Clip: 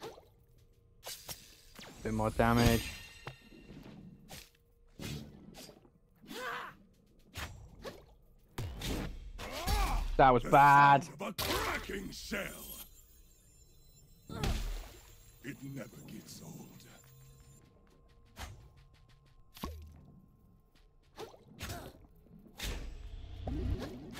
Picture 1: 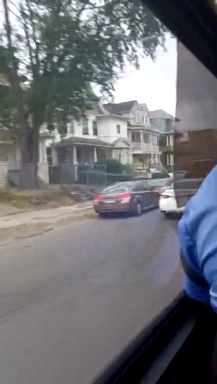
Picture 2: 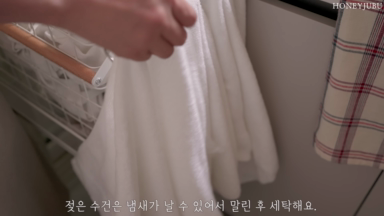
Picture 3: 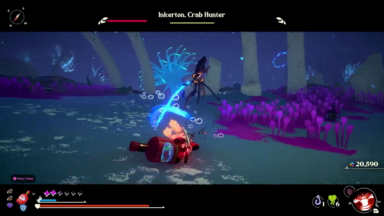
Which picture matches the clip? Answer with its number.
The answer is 3